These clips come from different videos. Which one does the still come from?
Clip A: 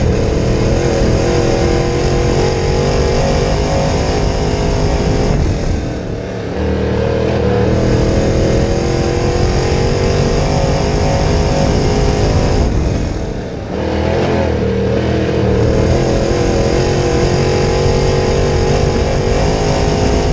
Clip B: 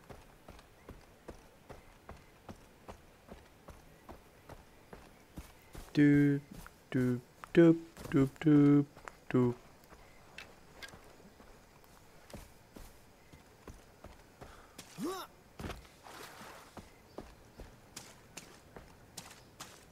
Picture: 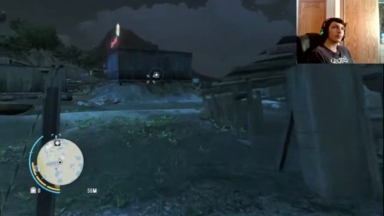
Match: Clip B